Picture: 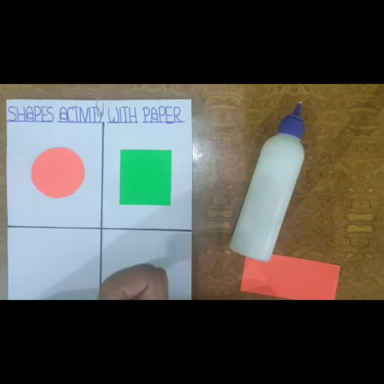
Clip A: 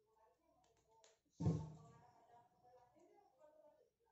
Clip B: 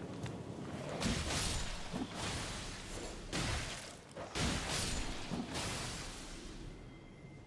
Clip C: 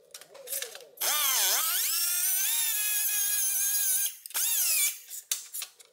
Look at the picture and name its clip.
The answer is A